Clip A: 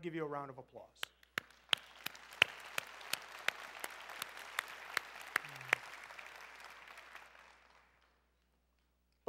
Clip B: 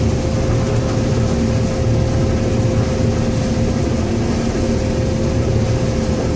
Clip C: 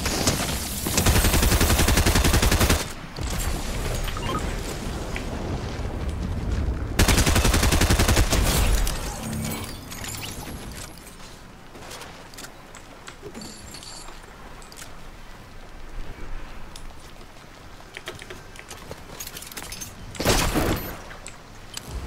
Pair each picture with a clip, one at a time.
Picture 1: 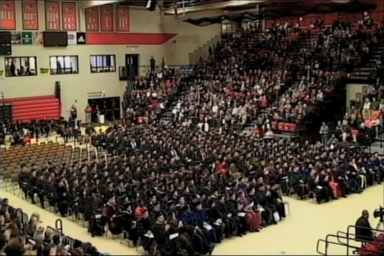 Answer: A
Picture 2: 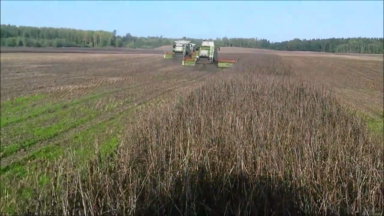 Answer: B